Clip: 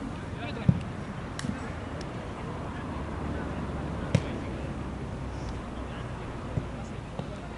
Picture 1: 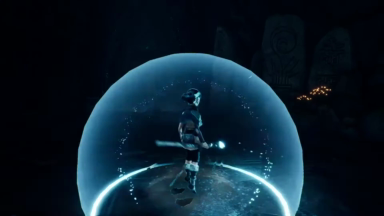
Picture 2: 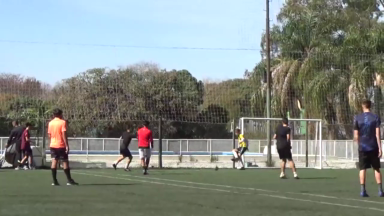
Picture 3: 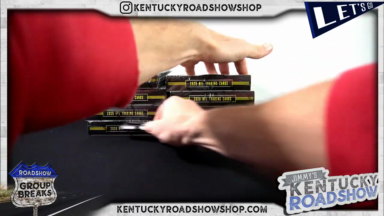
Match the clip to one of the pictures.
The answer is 2